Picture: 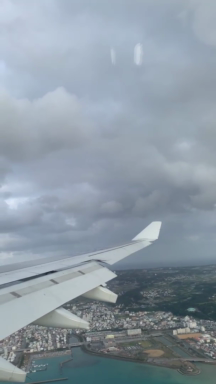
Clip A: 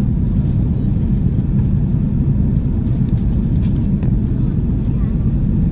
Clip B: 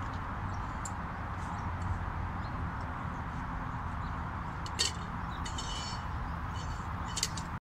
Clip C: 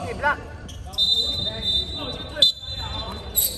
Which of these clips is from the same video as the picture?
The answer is A